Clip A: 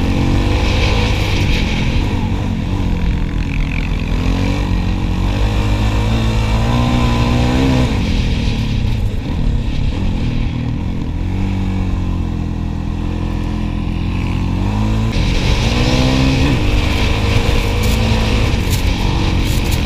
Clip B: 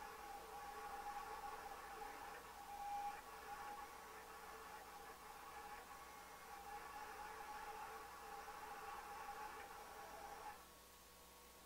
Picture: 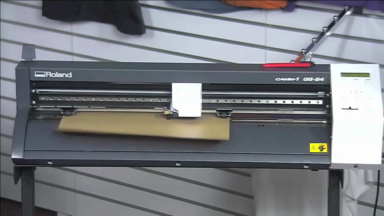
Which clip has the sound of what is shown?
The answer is B